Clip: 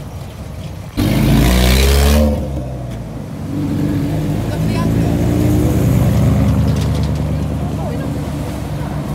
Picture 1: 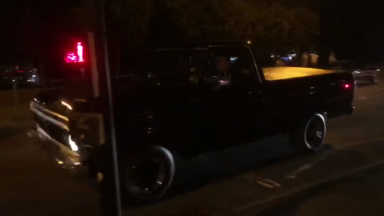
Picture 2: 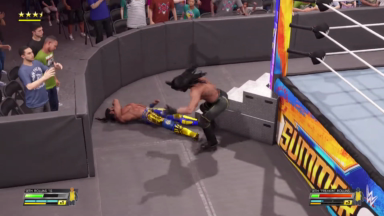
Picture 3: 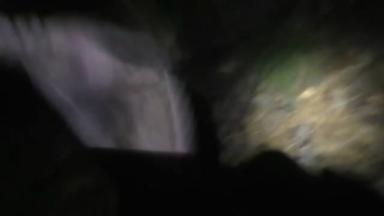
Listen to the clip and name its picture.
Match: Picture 1